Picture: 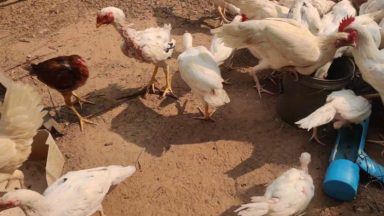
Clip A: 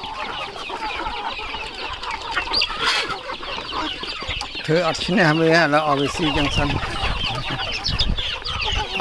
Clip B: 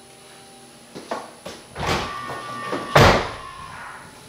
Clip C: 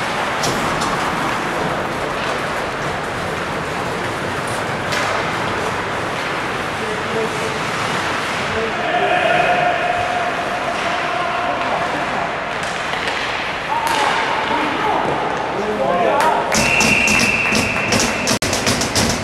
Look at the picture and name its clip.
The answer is A